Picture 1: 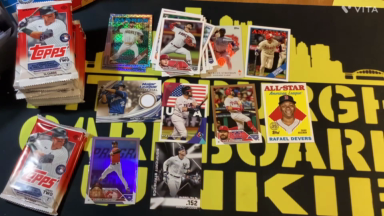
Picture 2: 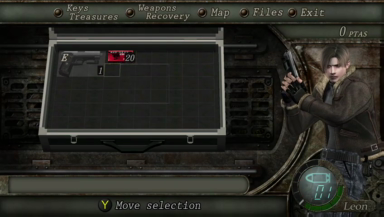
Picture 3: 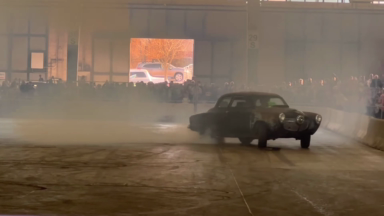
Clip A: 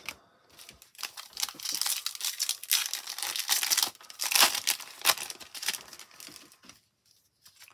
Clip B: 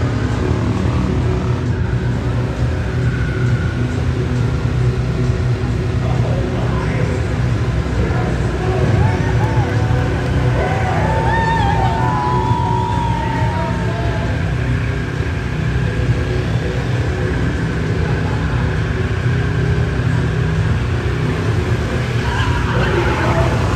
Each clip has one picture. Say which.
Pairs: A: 1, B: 3